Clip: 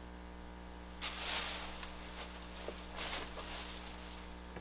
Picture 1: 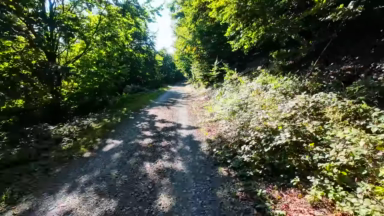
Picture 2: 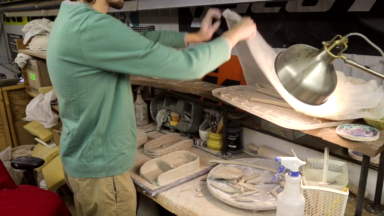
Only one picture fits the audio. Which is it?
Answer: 2